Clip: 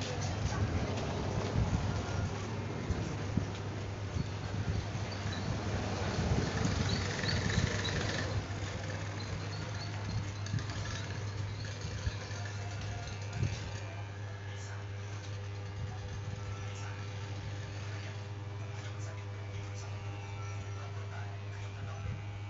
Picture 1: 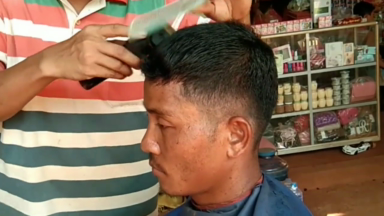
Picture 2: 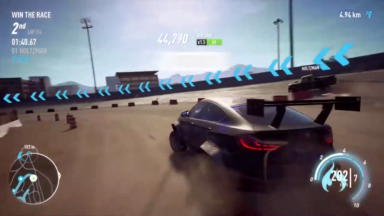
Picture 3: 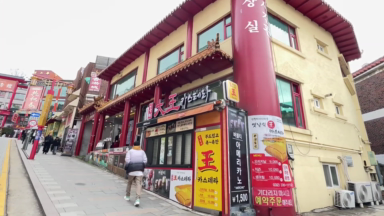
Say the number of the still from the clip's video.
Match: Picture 1